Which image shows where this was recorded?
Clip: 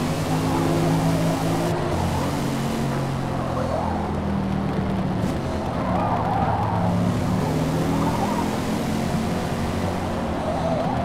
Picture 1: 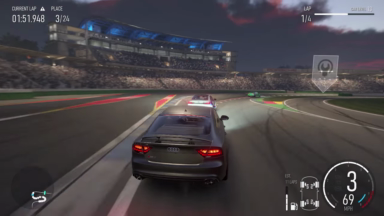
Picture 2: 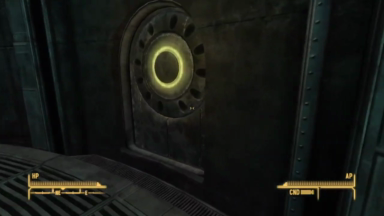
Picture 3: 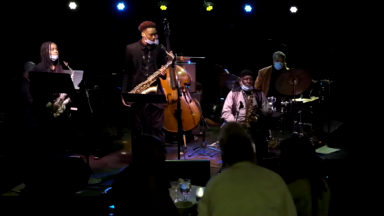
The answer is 1